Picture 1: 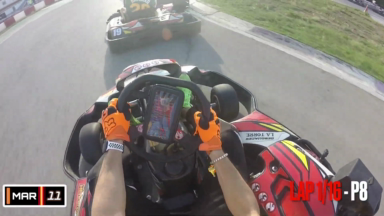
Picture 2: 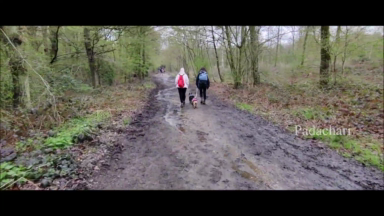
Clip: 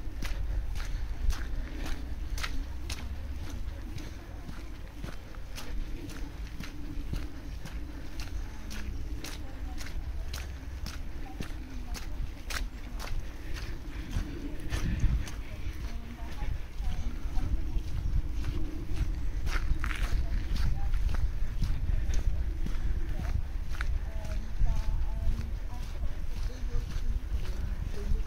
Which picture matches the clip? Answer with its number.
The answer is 2